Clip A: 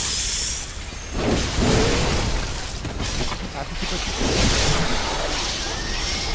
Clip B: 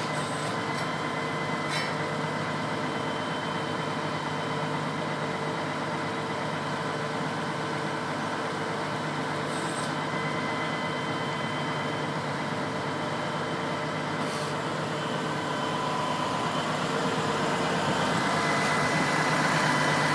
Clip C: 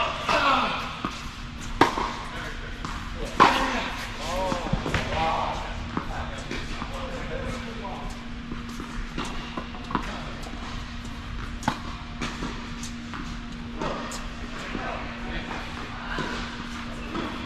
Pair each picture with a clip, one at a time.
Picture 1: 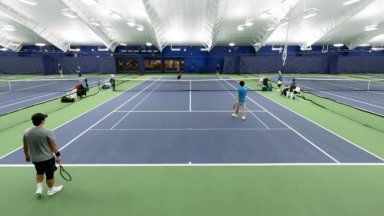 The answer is C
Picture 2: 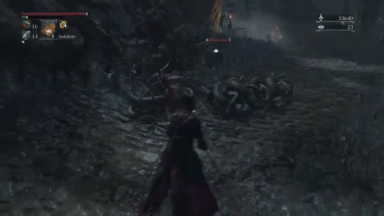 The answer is A